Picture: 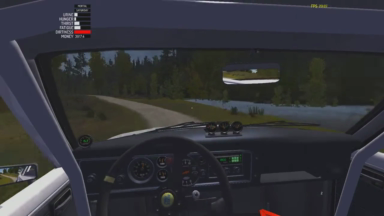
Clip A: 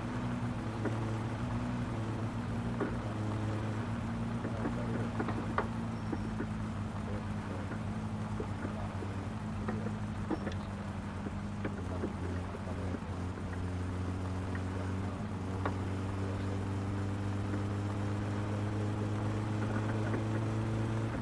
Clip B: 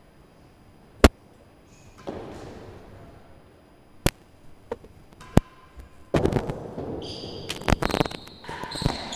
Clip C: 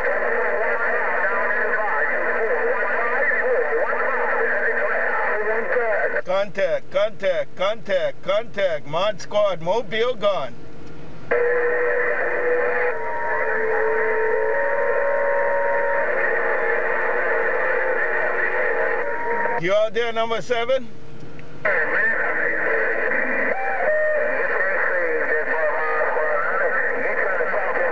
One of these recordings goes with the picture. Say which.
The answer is A